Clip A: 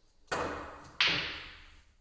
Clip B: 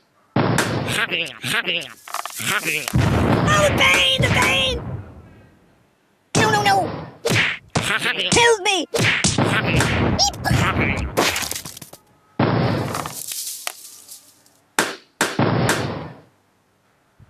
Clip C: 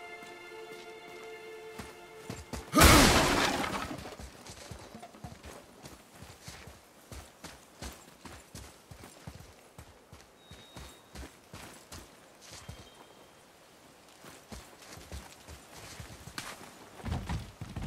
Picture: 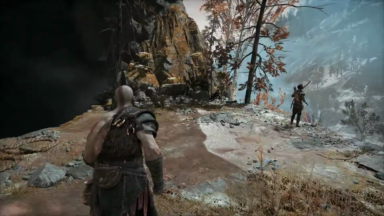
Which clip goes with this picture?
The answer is C